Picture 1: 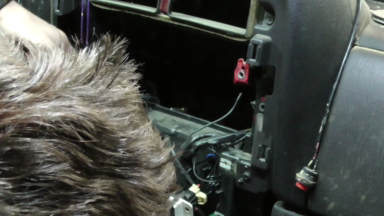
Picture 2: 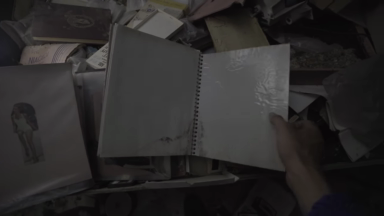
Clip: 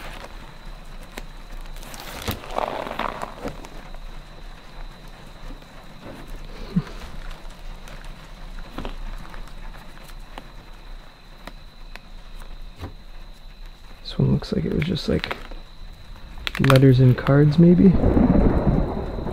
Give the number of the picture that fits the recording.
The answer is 2